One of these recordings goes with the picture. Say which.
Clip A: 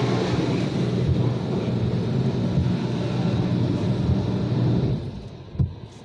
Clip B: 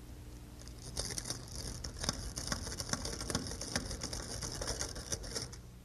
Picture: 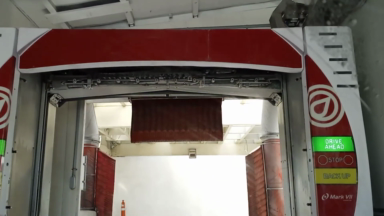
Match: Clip A